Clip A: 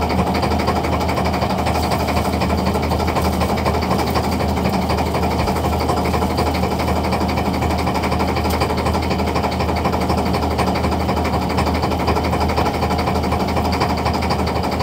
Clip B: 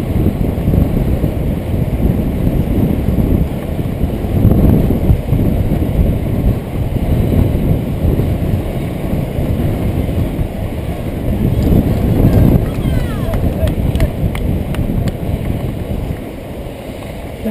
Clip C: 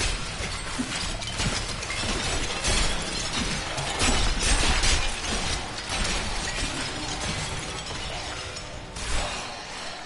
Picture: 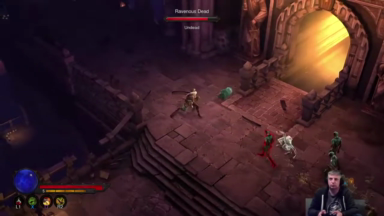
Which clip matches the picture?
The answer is C